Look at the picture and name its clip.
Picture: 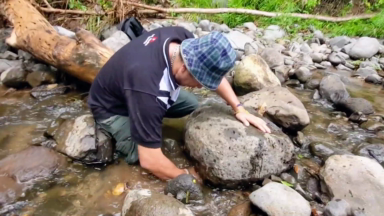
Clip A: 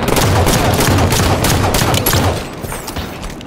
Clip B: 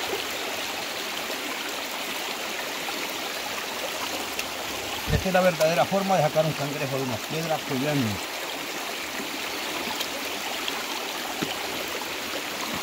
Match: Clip B